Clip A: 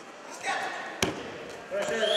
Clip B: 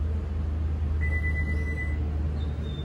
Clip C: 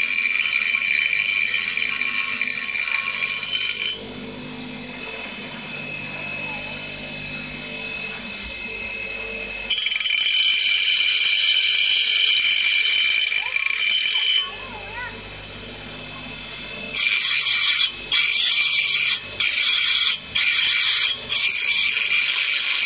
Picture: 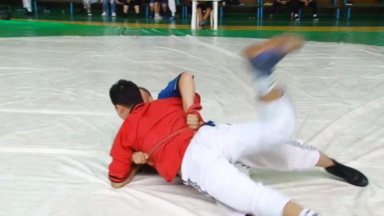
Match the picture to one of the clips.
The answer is A